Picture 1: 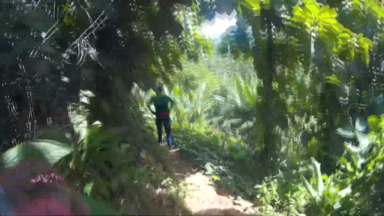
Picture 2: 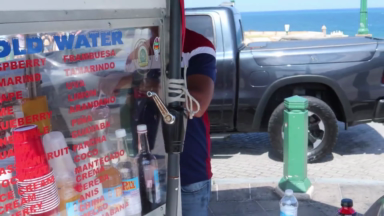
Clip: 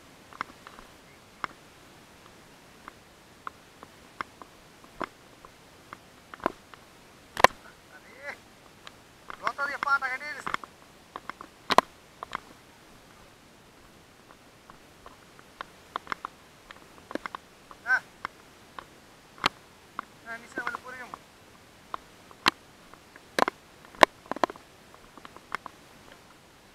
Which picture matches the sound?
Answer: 1